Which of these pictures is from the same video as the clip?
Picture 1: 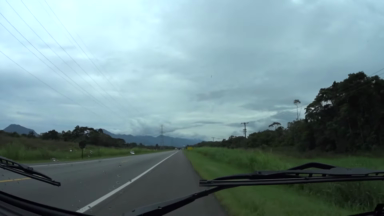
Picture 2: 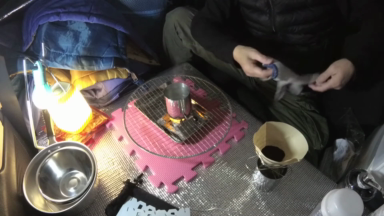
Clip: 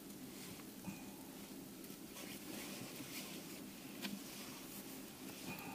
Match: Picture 2